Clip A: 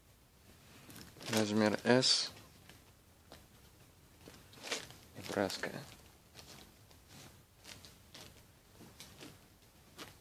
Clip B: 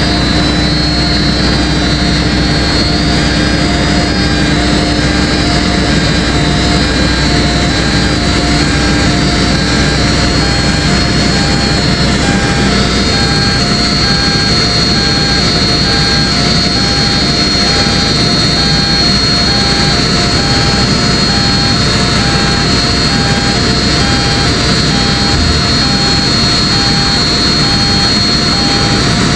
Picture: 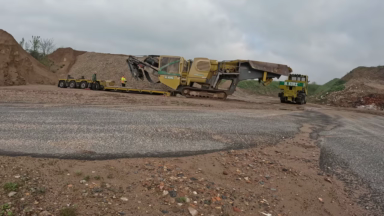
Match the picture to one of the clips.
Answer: B